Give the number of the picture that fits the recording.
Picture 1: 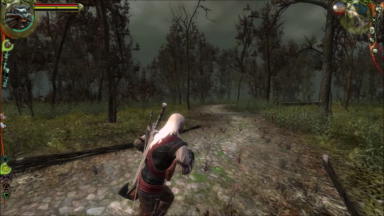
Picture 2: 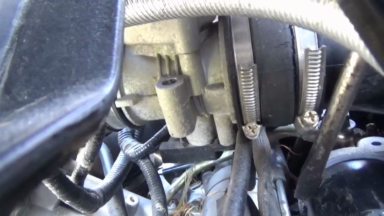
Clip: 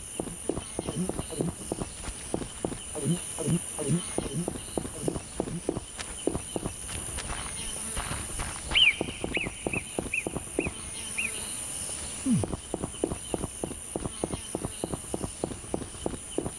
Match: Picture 1